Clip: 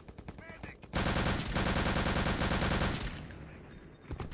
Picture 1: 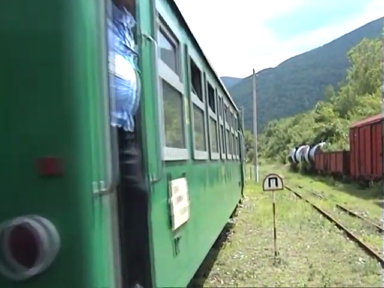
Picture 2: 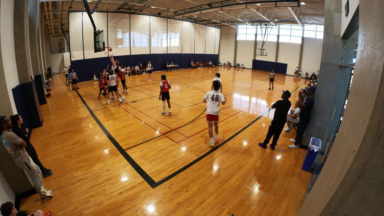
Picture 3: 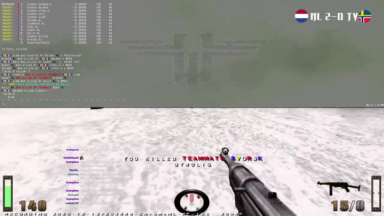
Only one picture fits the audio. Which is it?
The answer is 3